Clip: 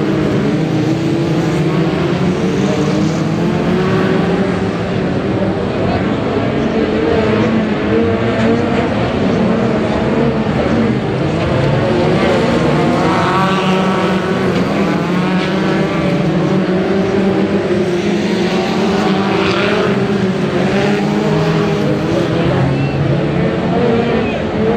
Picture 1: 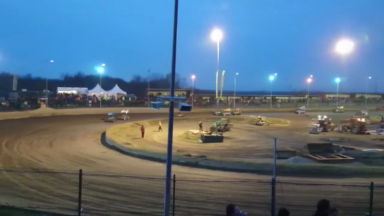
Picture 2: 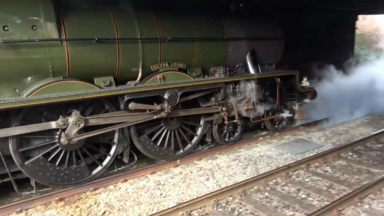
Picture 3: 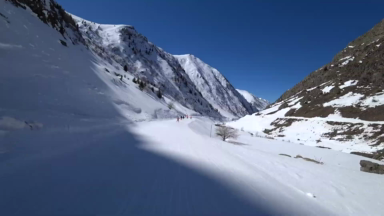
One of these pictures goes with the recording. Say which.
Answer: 1